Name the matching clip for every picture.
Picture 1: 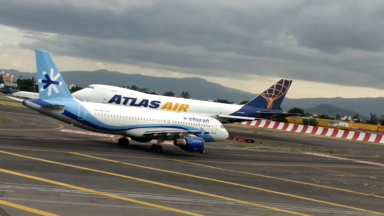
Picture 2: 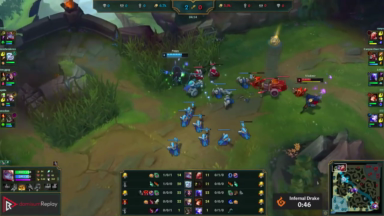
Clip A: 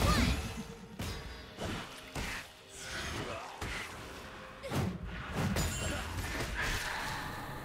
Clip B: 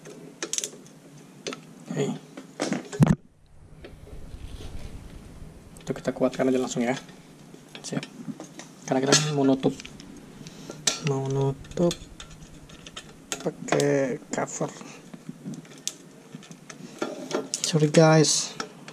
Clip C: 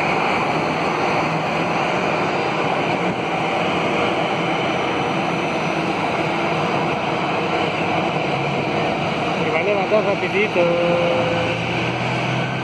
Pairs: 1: C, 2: A